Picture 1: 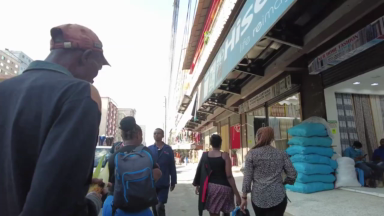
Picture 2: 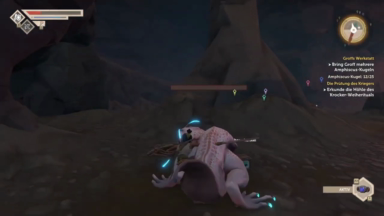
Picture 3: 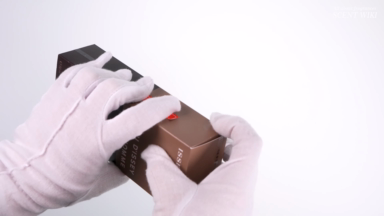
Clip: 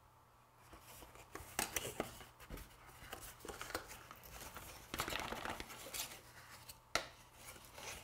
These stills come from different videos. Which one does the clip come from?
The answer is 3